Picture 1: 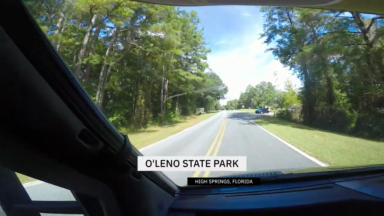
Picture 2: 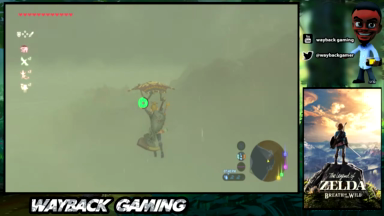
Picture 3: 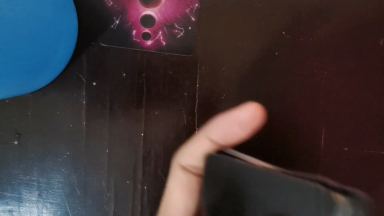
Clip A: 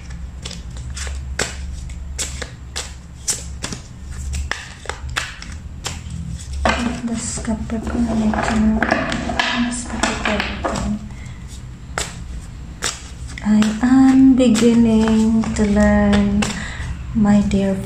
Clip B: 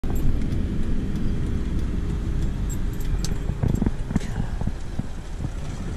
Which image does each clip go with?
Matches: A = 3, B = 1